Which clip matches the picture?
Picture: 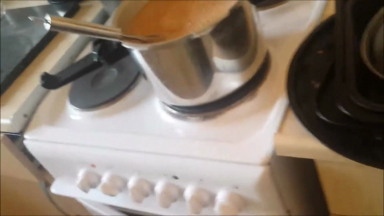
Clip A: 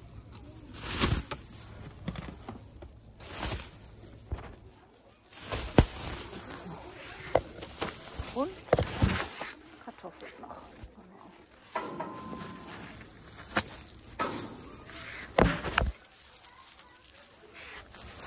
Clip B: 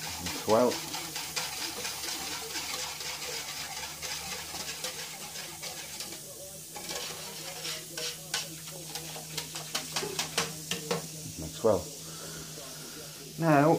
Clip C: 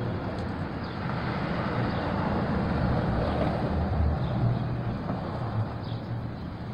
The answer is B